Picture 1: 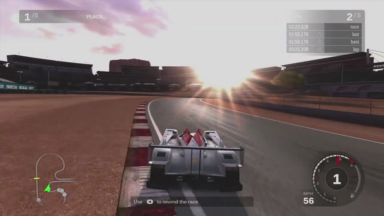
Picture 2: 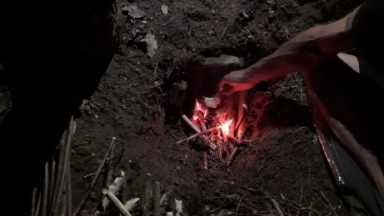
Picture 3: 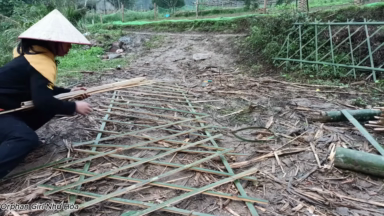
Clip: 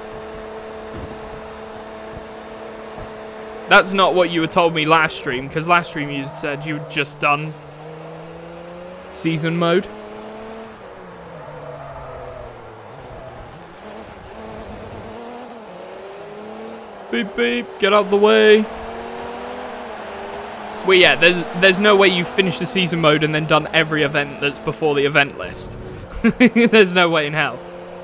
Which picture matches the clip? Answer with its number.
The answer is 1